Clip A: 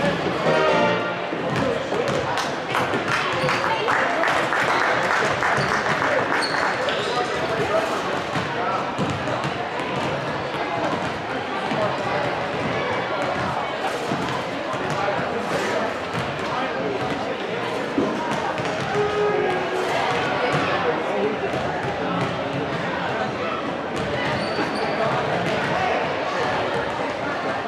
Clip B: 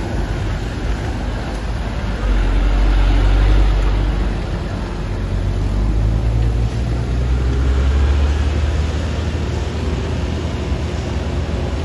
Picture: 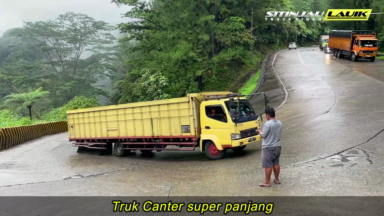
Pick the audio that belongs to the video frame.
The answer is B